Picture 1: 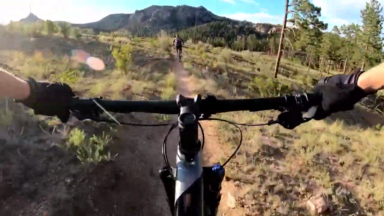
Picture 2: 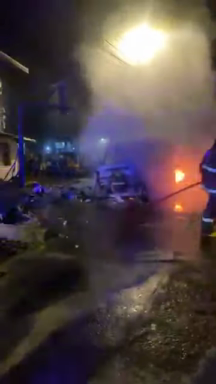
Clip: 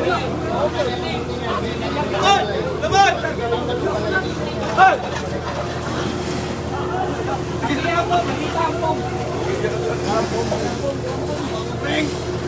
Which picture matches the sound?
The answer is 2